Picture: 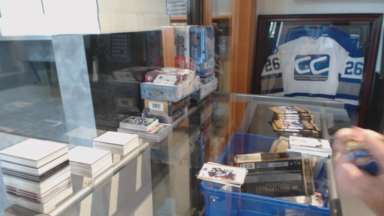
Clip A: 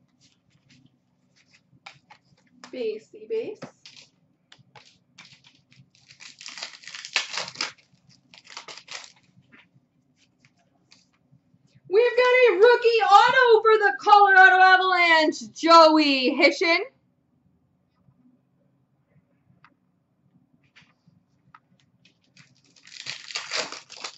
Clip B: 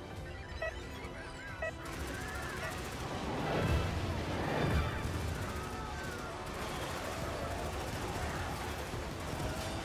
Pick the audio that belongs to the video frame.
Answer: A